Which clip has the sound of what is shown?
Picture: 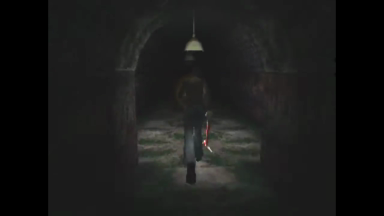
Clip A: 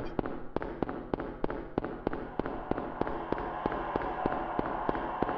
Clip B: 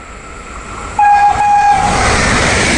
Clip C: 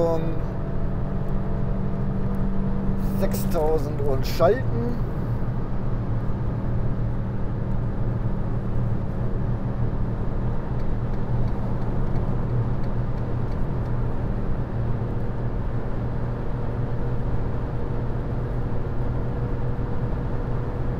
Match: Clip A